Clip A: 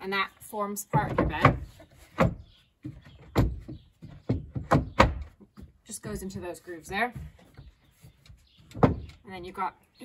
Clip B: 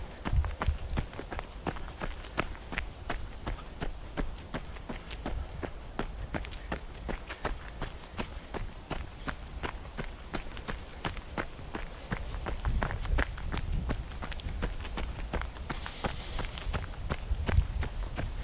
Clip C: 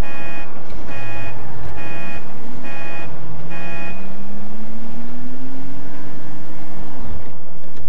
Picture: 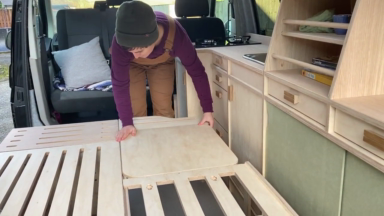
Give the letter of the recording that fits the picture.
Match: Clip A